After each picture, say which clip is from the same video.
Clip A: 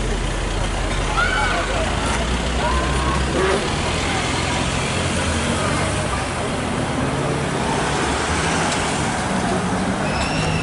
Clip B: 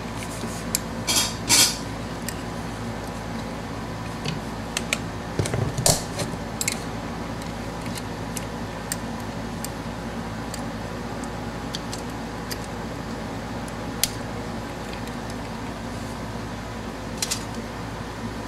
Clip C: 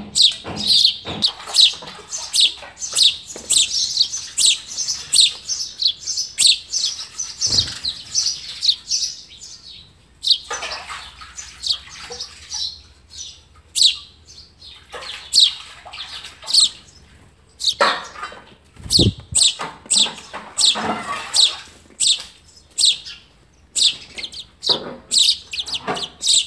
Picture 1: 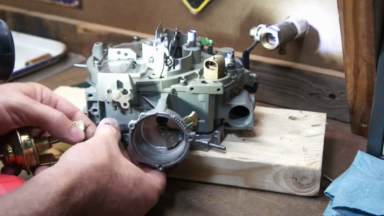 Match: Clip B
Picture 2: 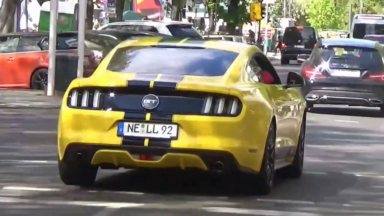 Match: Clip A